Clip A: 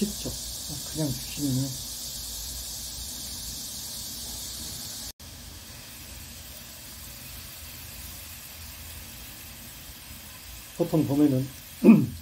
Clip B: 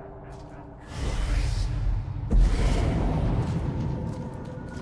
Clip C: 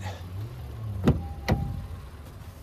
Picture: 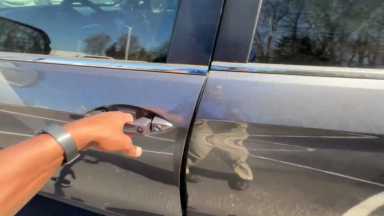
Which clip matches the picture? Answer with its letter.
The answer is C